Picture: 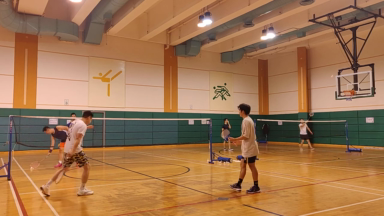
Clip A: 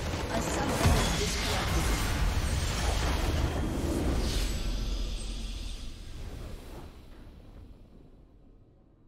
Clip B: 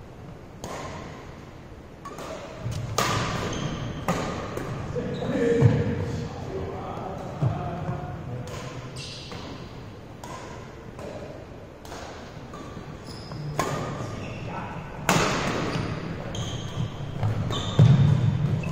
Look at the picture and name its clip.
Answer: B